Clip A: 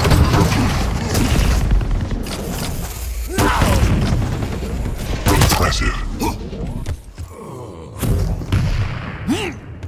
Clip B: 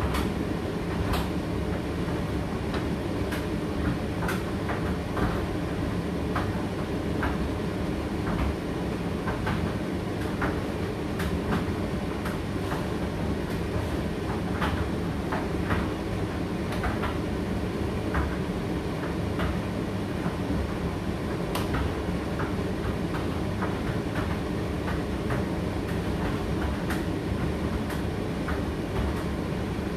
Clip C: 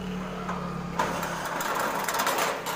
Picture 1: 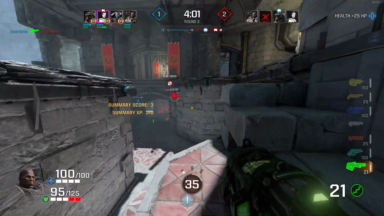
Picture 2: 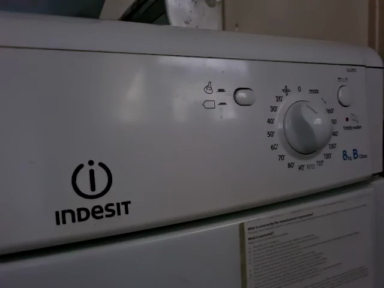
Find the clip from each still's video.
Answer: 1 A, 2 B